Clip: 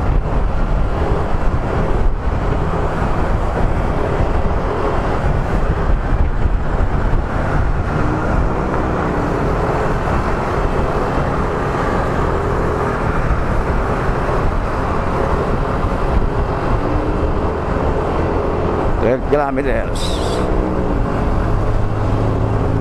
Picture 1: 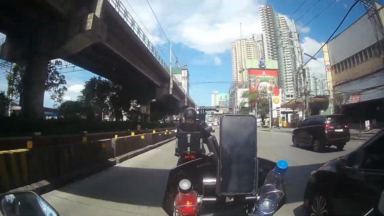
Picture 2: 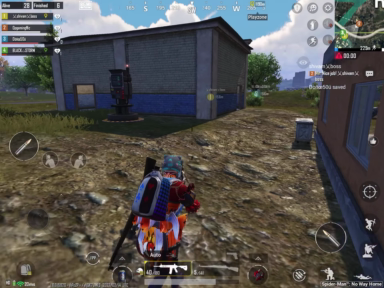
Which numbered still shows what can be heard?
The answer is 1